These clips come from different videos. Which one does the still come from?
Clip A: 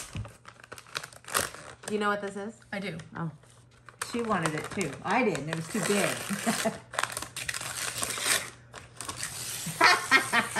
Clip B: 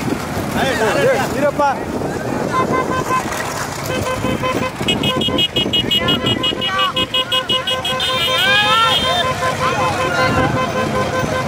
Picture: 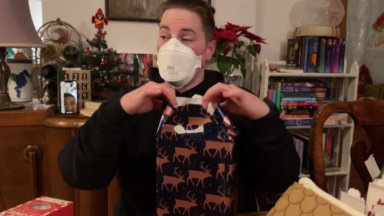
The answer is A